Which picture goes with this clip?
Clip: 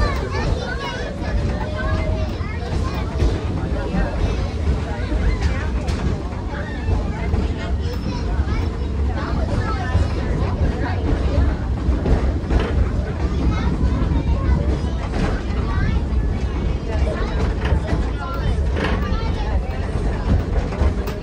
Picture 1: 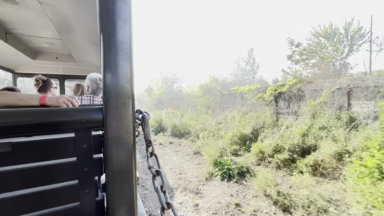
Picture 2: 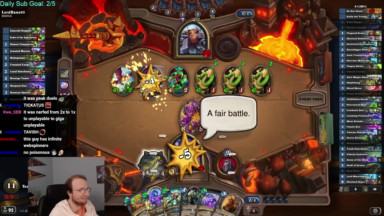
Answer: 1